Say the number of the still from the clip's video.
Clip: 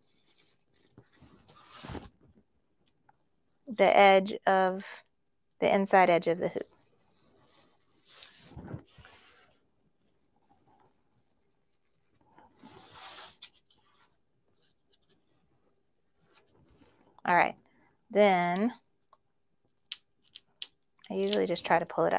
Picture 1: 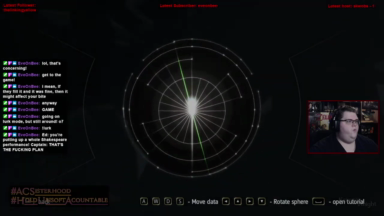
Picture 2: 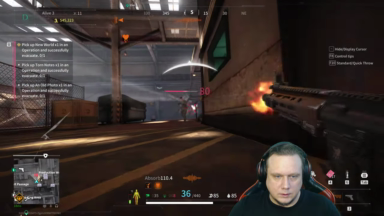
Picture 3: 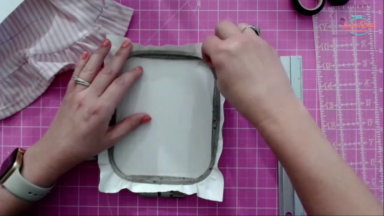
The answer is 3